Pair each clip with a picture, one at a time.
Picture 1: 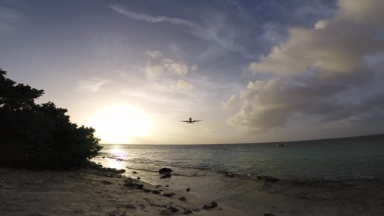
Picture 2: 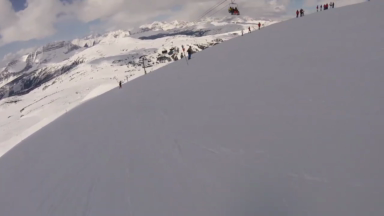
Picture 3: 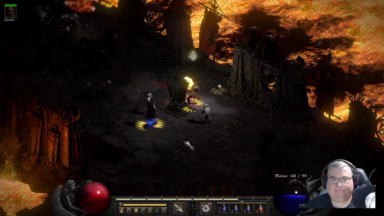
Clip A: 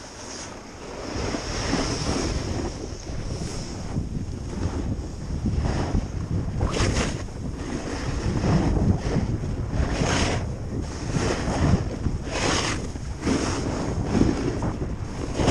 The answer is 2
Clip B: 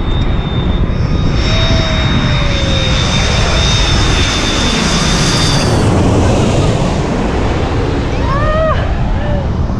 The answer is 1